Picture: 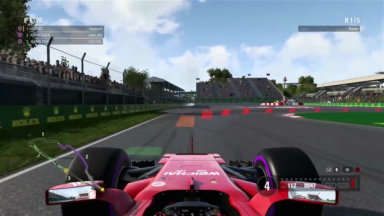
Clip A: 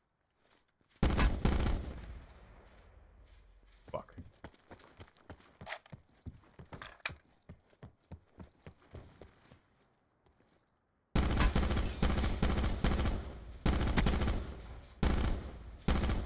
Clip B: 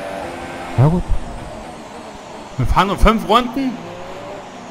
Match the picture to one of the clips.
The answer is B